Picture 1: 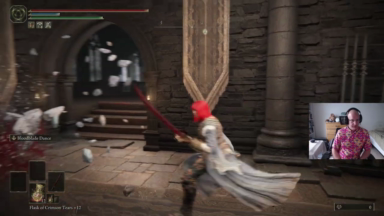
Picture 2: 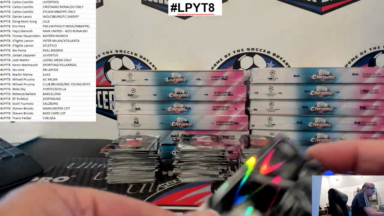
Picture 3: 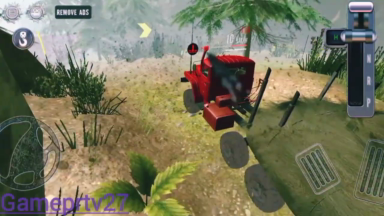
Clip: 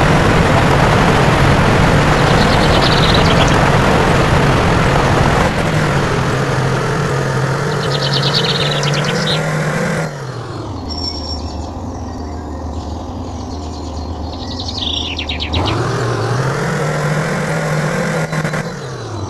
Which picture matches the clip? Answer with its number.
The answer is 3